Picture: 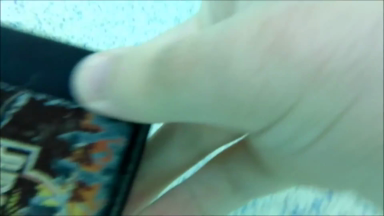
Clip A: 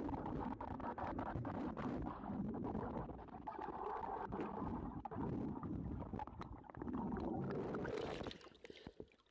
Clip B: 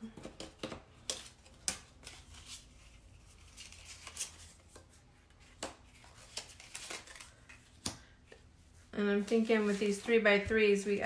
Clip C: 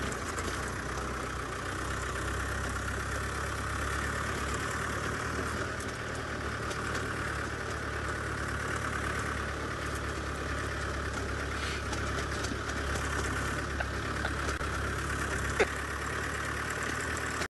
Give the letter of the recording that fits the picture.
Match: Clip A